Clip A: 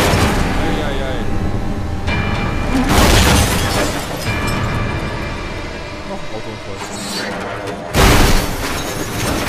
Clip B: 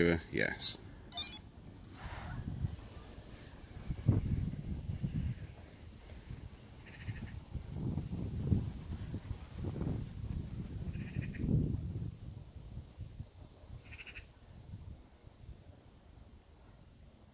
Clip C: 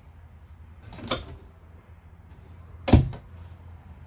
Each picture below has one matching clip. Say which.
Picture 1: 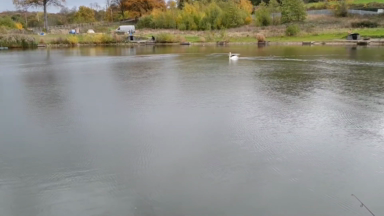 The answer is B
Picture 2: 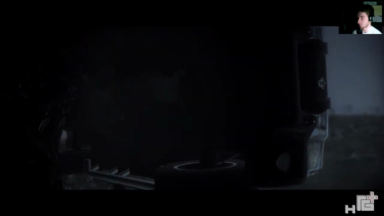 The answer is A